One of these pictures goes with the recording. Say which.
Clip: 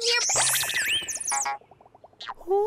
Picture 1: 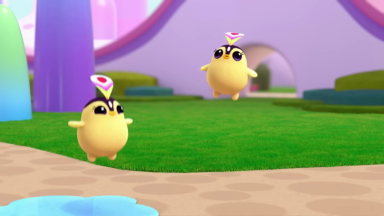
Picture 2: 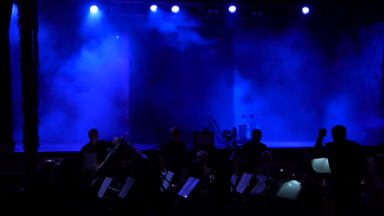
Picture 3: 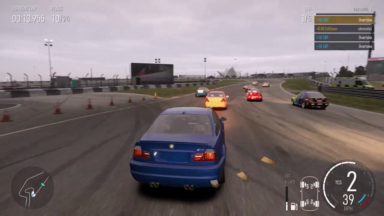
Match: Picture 1